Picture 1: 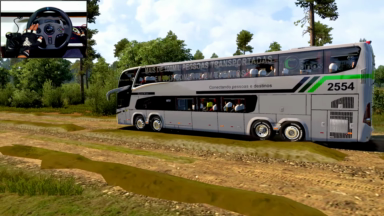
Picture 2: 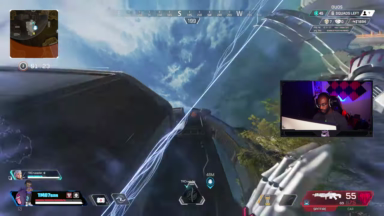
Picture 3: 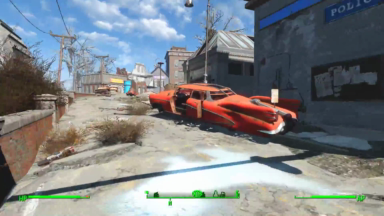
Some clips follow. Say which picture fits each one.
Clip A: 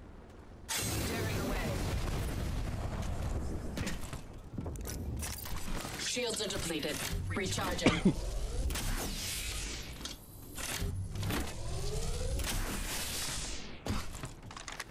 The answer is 2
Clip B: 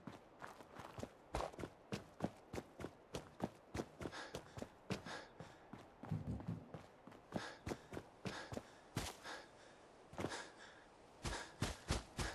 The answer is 3